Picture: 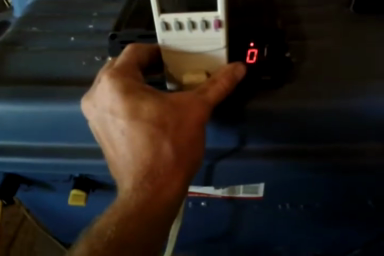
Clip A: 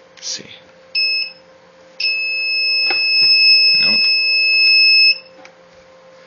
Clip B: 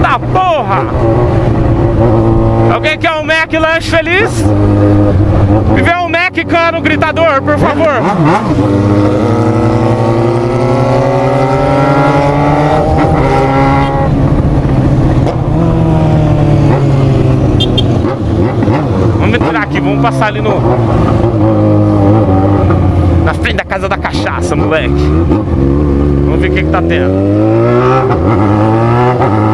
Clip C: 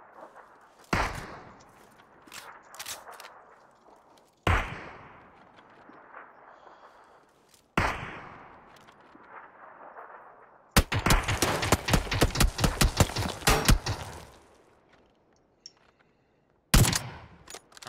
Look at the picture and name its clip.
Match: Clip A